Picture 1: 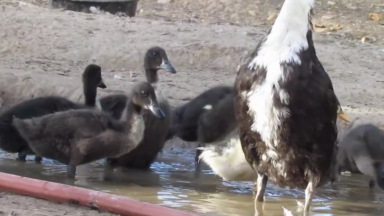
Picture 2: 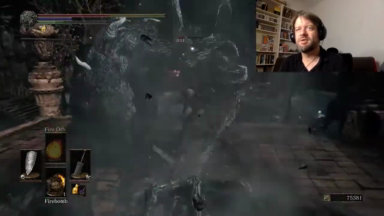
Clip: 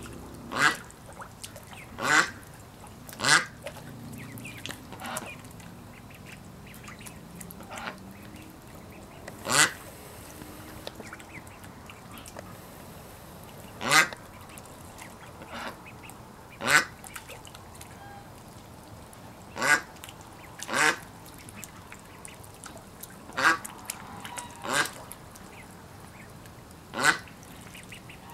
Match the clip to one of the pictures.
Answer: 1